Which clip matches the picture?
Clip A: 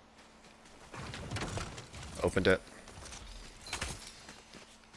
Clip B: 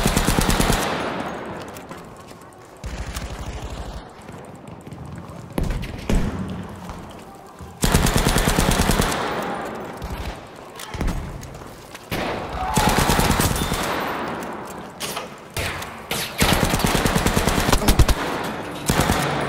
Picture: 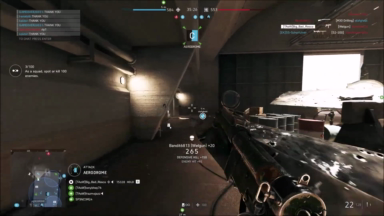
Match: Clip B